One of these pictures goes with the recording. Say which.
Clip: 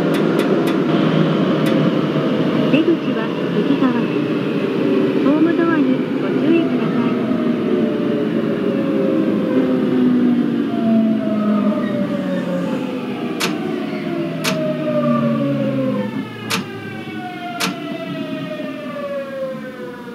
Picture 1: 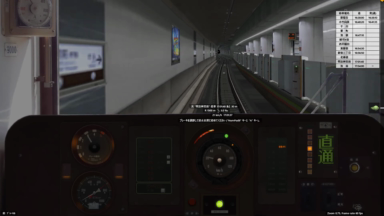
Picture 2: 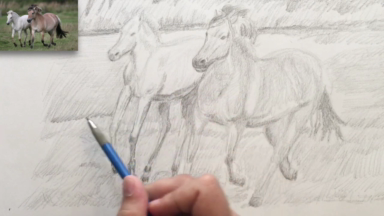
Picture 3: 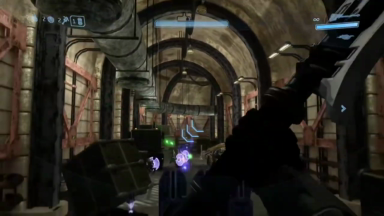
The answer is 1